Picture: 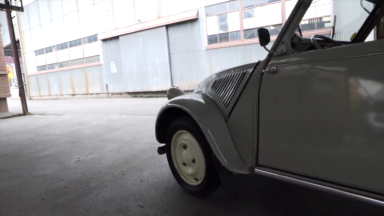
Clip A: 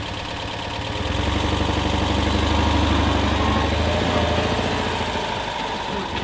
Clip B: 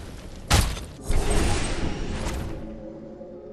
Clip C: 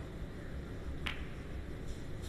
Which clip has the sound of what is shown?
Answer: A